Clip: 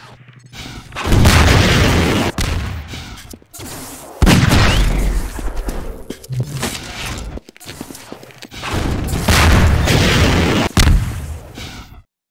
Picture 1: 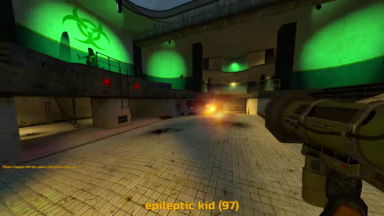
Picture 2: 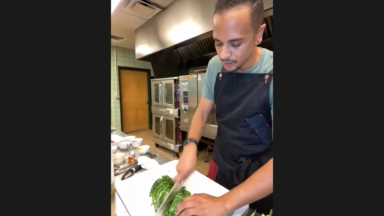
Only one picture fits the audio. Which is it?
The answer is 1